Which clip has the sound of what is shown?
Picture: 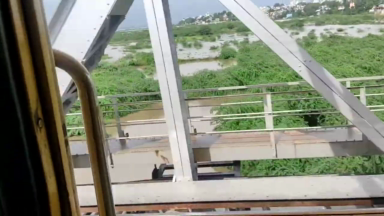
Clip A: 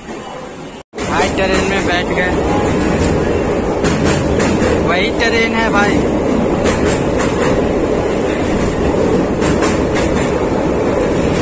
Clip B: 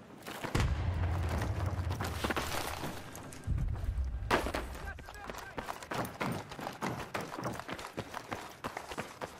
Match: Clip A